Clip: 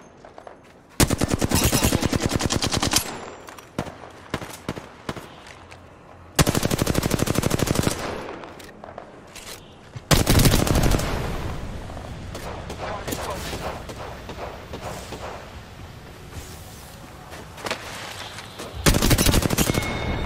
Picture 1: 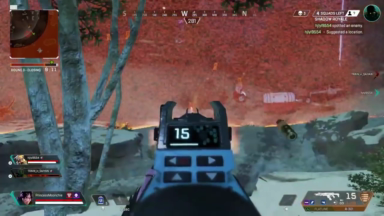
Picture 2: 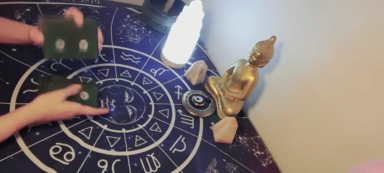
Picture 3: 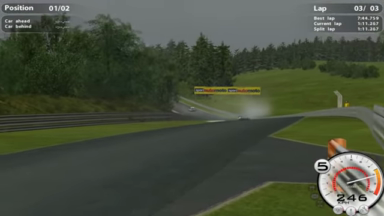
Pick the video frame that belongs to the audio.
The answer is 1